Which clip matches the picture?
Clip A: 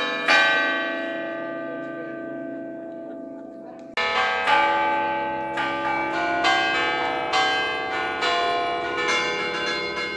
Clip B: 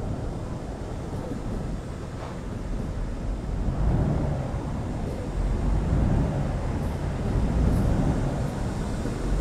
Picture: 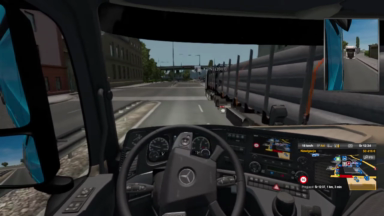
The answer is B